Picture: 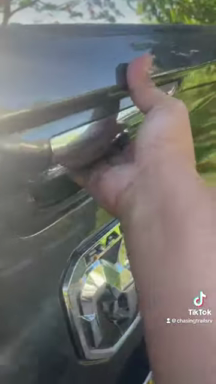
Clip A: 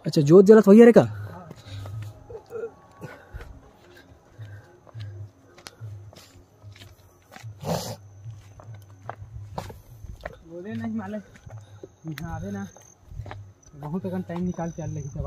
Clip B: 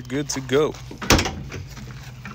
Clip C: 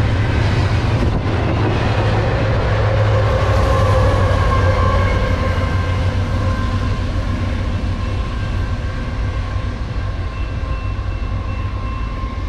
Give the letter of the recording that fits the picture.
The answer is B